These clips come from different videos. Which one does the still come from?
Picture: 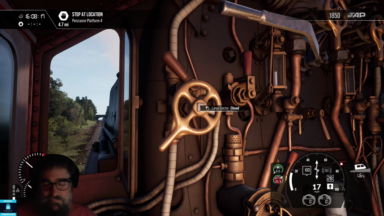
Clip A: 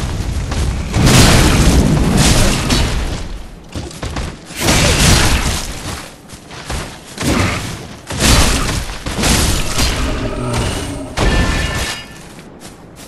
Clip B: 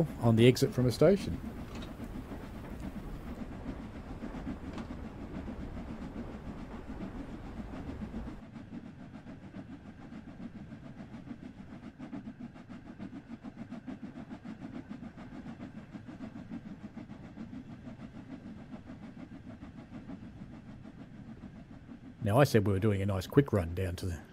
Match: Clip B